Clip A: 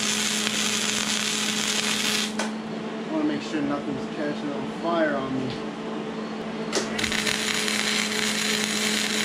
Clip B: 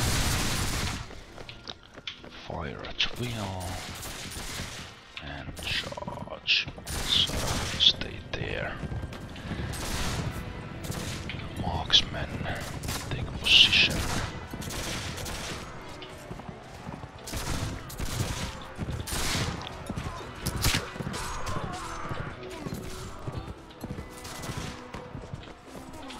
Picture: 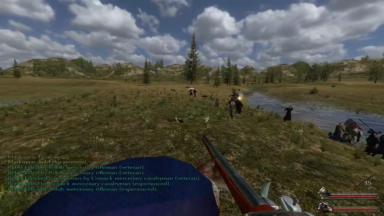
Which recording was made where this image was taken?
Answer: B